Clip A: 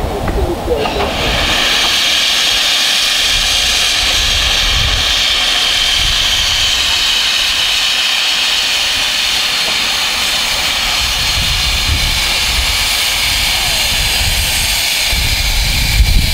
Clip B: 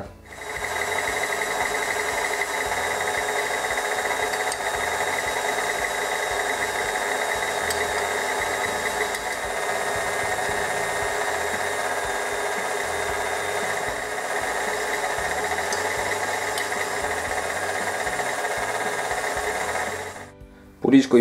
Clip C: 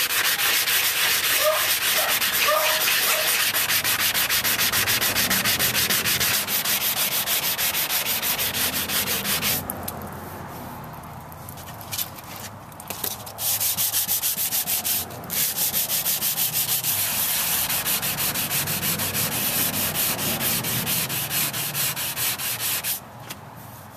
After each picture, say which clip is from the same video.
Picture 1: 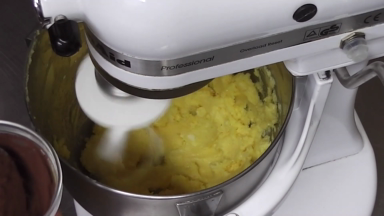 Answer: B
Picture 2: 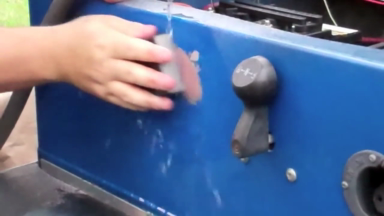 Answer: C